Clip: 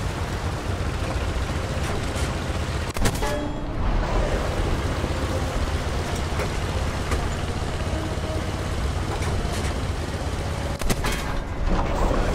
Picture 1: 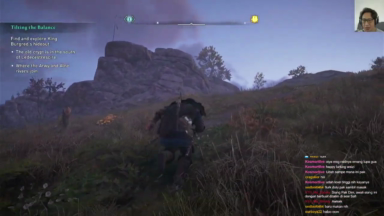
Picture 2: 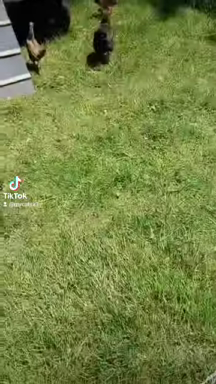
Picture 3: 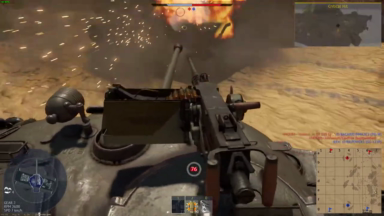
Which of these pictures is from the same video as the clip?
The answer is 3